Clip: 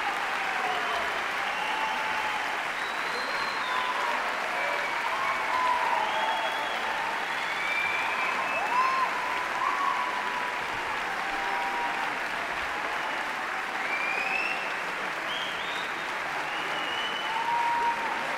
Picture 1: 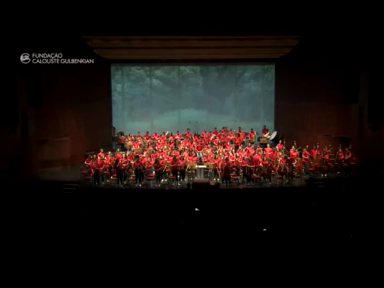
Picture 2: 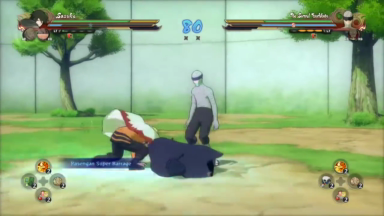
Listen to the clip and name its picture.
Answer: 1